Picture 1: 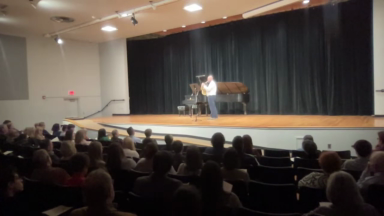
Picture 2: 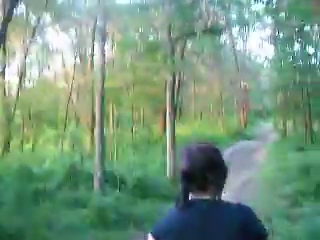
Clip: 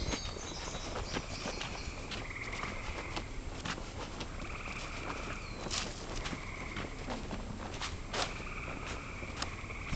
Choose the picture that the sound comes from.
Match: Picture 2